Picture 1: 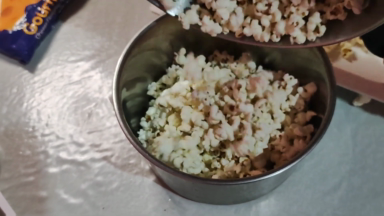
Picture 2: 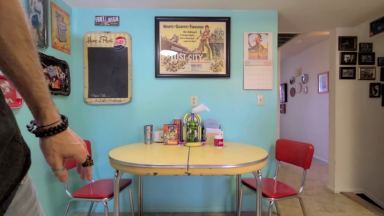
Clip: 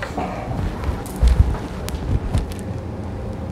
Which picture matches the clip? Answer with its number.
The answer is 2